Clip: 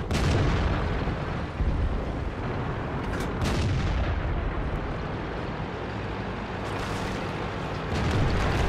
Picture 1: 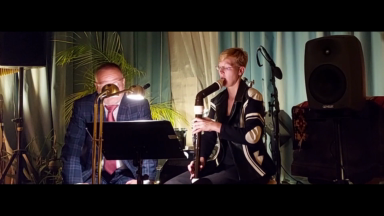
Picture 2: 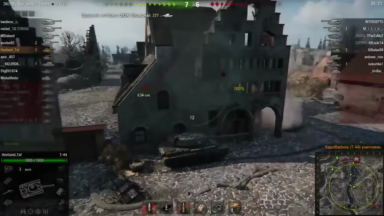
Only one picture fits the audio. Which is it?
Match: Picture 2